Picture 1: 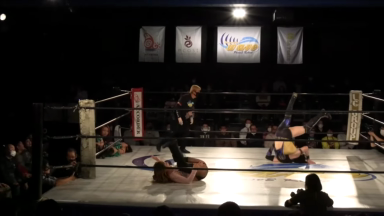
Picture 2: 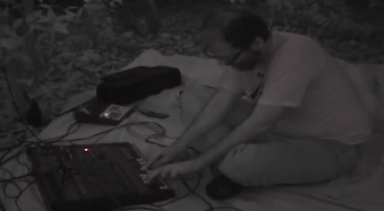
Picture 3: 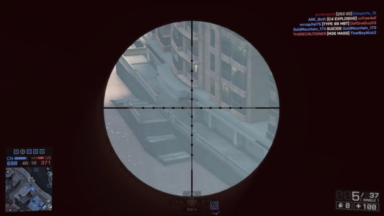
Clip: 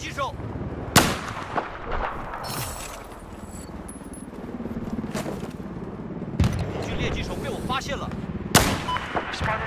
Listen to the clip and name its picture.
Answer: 3